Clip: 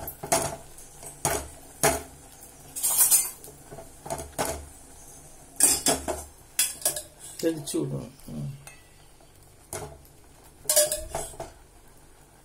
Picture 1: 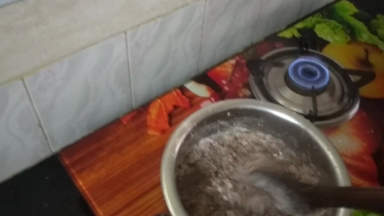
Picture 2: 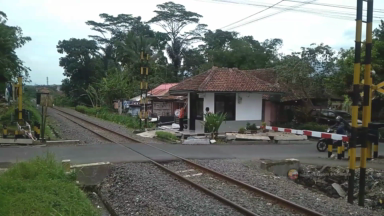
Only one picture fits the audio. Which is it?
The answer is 1